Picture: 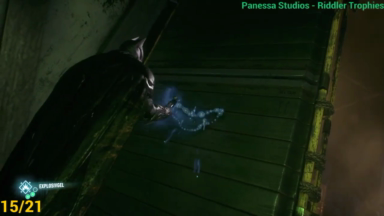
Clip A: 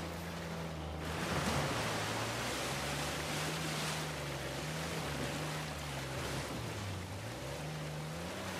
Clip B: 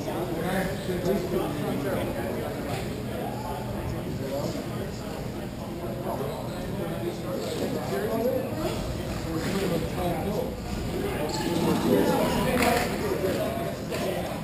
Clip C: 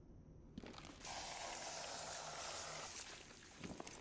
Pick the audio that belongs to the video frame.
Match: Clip C